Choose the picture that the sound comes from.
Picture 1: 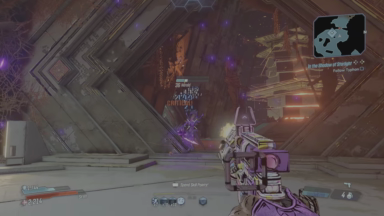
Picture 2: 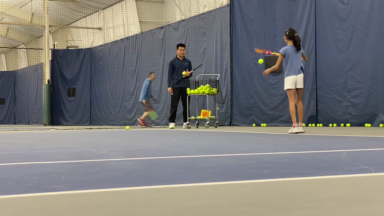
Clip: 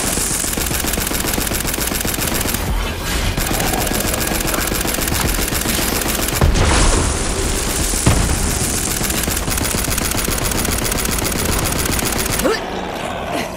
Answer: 1